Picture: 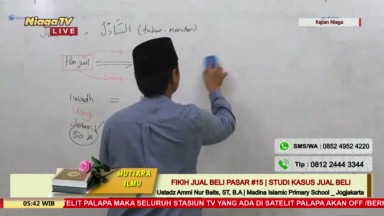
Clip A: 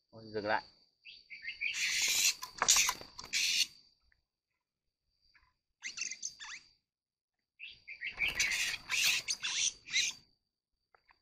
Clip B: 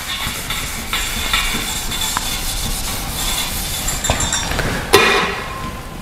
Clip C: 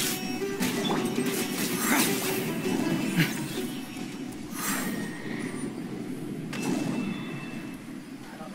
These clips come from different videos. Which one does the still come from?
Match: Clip B